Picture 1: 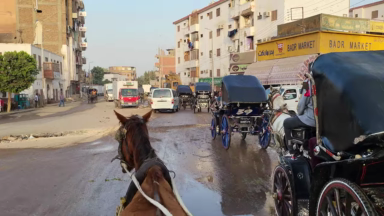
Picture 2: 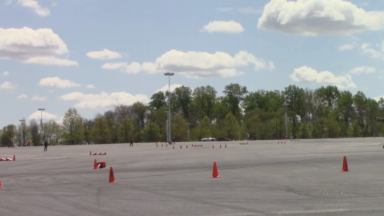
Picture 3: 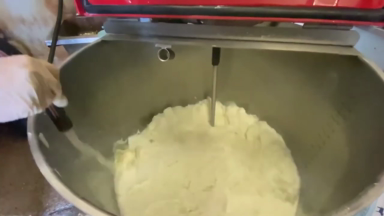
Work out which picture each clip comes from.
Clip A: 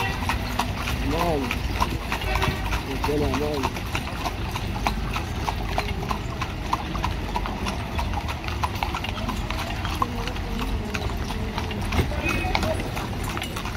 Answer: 1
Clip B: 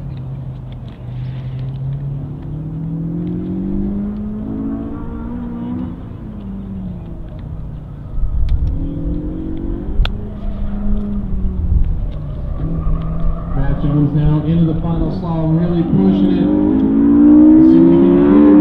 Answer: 2